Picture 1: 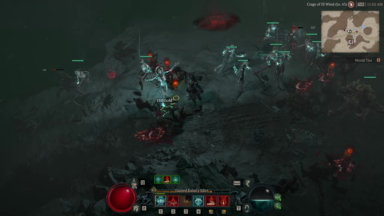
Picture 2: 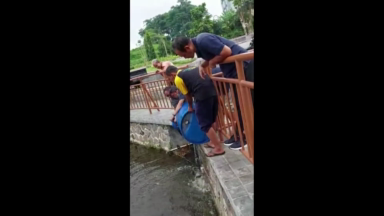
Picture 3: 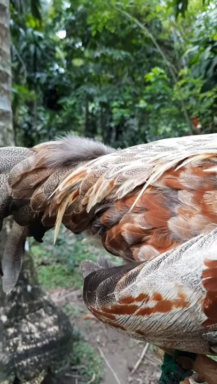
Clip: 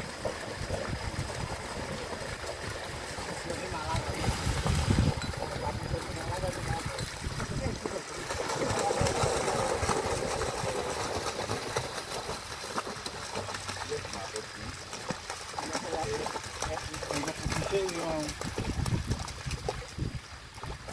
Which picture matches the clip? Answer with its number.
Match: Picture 2